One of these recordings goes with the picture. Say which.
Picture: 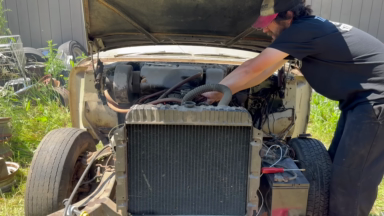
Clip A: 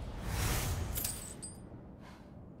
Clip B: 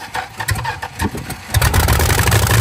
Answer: B